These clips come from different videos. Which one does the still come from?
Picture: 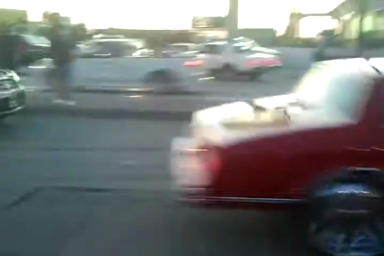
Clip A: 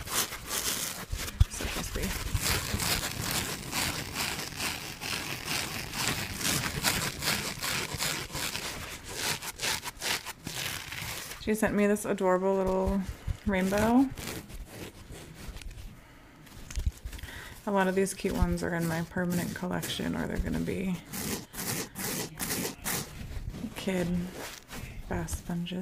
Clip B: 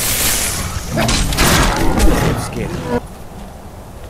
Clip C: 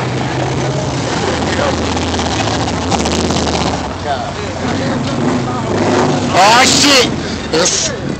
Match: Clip C